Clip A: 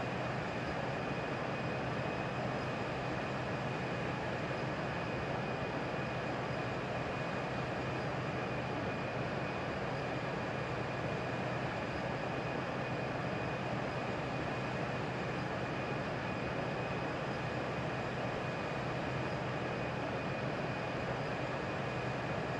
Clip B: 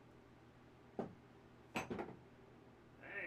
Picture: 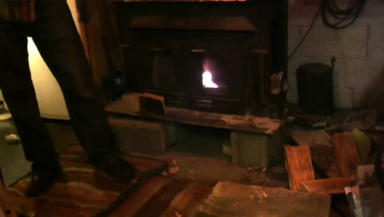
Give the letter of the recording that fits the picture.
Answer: B